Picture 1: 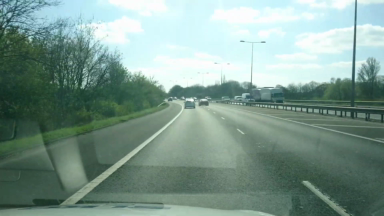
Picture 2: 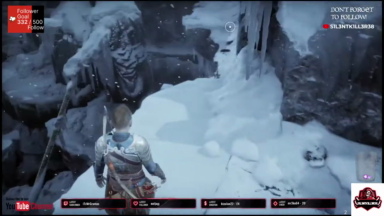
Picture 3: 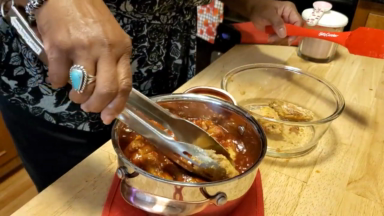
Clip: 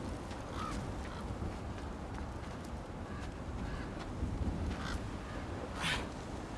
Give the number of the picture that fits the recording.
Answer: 2